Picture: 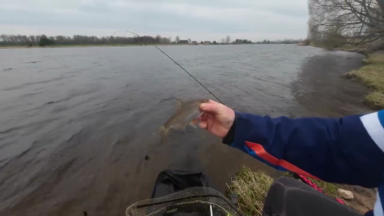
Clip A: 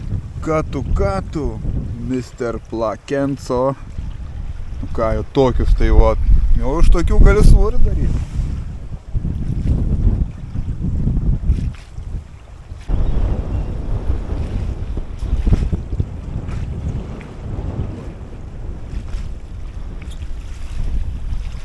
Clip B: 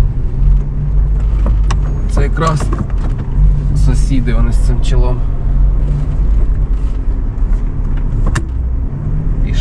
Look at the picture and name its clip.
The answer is A